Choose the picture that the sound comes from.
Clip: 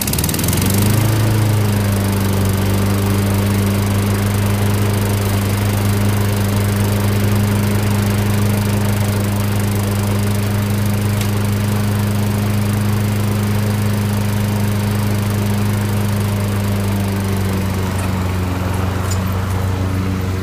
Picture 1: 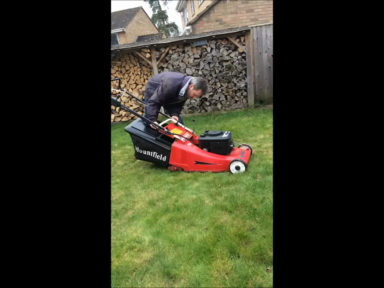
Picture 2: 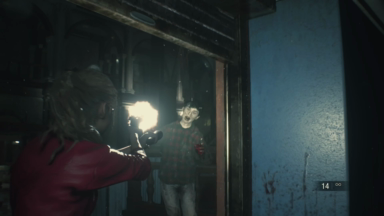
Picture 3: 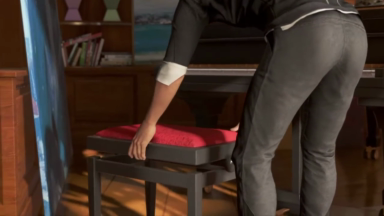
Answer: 1